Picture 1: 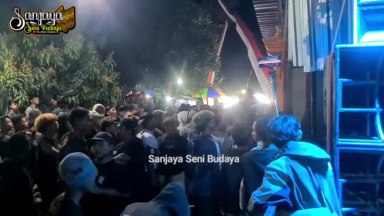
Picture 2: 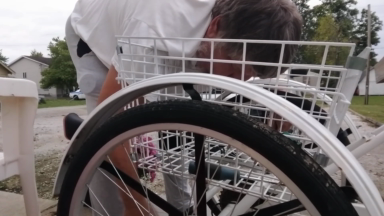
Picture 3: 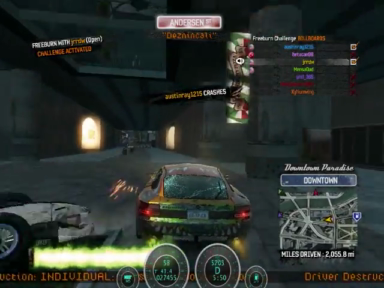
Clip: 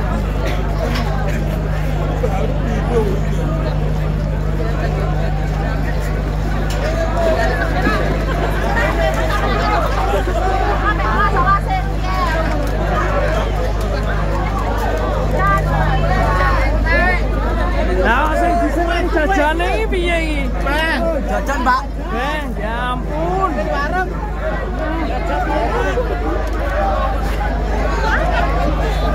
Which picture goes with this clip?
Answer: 1